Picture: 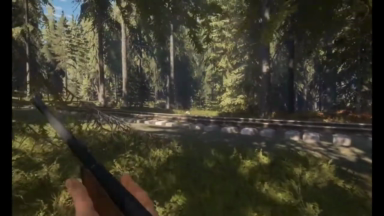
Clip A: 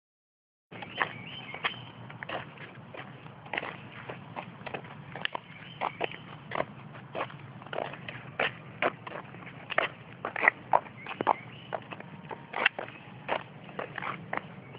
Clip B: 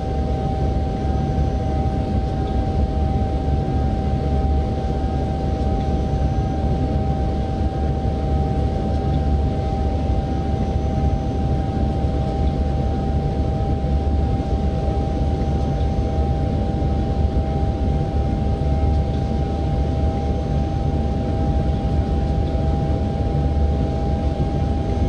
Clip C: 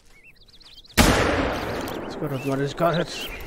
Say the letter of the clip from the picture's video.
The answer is C